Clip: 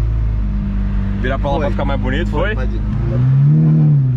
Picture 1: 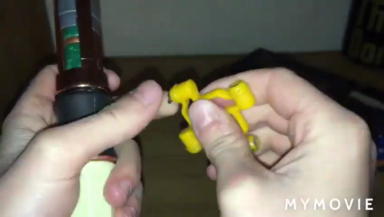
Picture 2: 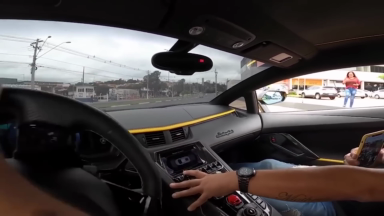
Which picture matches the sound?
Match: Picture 2